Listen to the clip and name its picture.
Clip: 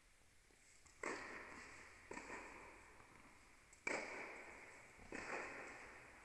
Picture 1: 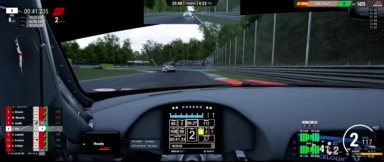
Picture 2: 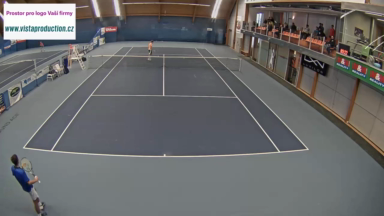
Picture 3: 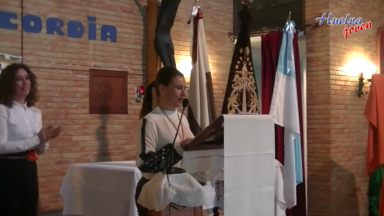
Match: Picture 2